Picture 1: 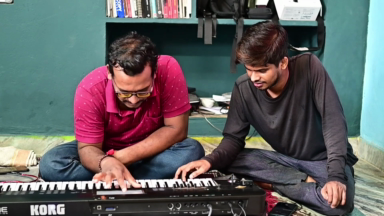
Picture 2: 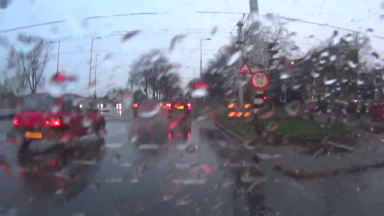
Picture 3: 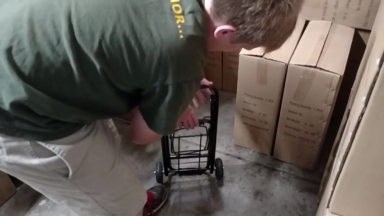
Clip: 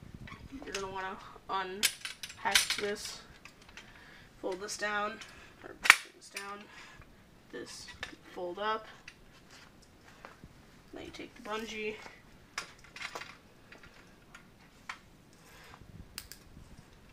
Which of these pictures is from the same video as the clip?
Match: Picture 3